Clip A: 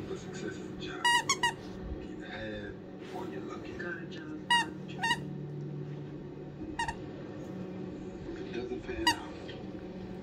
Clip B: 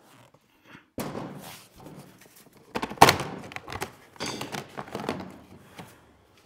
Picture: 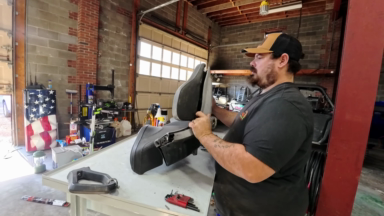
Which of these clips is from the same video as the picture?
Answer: B